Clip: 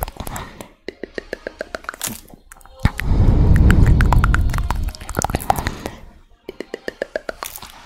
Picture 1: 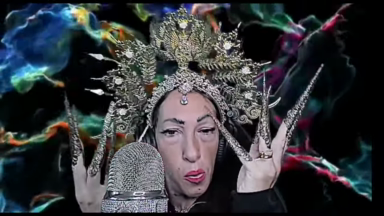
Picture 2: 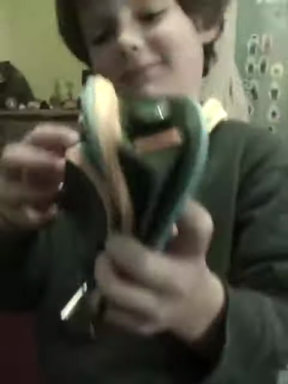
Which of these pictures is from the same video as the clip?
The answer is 1